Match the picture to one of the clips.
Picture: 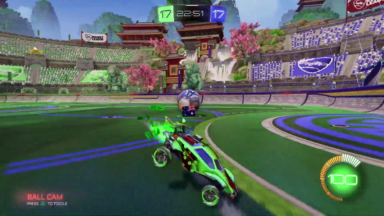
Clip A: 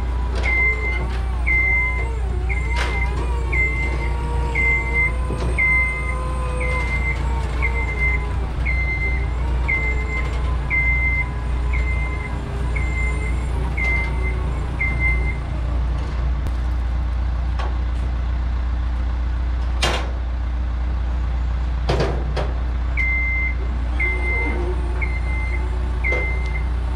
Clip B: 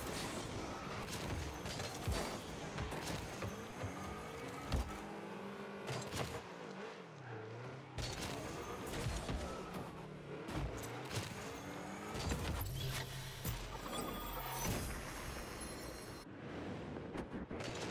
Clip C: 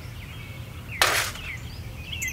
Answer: B